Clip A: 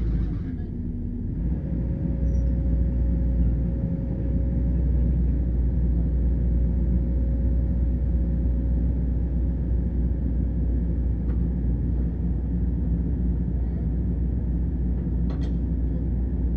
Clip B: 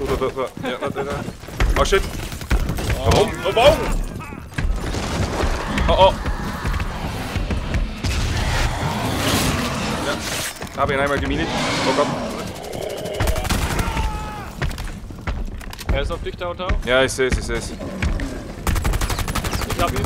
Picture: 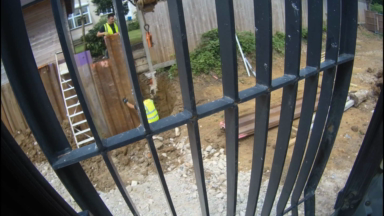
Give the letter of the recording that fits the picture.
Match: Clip A